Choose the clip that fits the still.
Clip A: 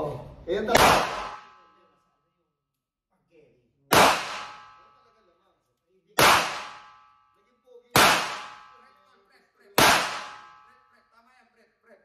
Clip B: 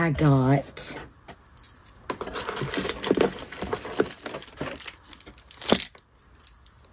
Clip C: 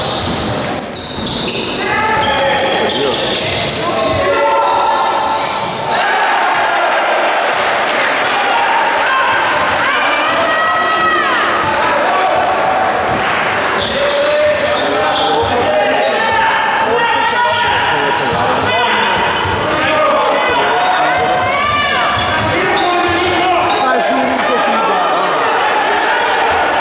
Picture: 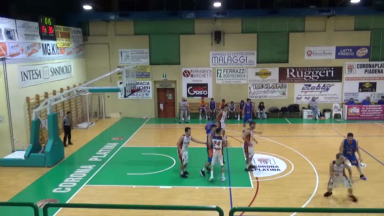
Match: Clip C